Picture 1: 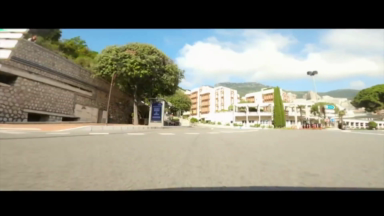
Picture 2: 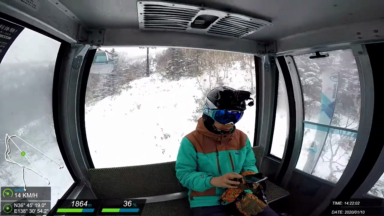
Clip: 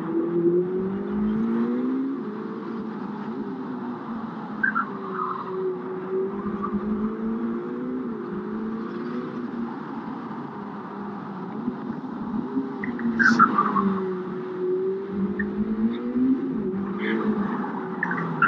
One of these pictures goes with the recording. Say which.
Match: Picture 1